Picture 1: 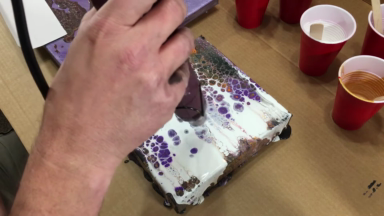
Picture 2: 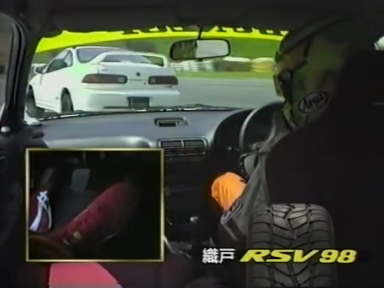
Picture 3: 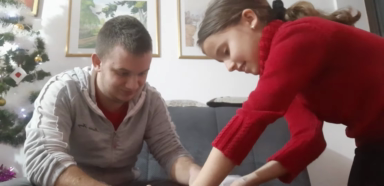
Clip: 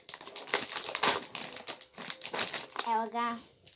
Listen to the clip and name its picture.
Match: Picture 3